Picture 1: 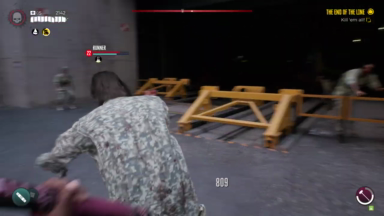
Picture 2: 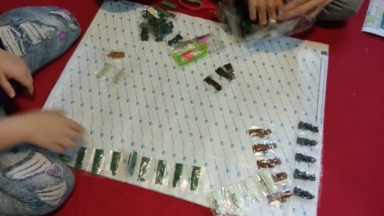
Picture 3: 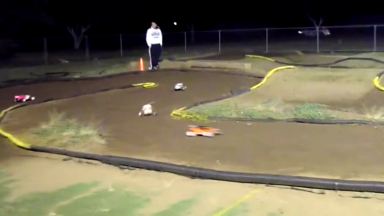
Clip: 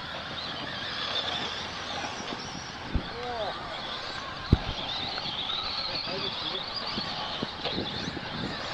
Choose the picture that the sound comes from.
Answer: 3